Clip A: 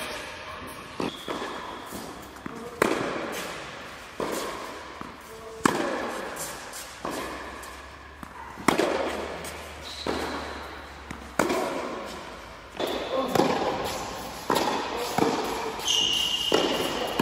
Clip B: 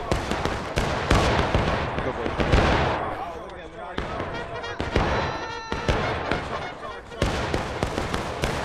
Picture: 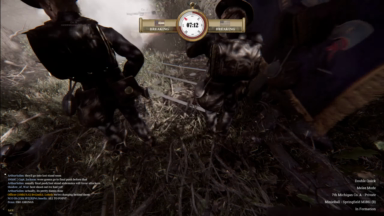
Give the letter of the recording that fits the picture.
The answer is B